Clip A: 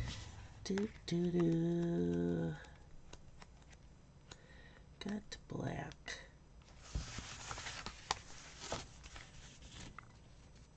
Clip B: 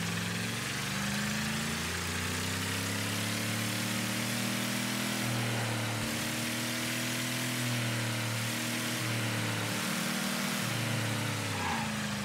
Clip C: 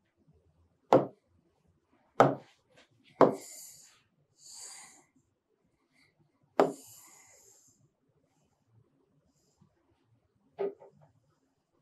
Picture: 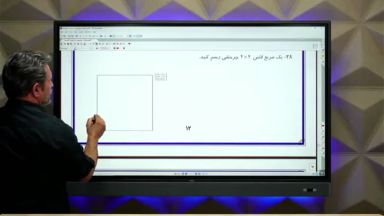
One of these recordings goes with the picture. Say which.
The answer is C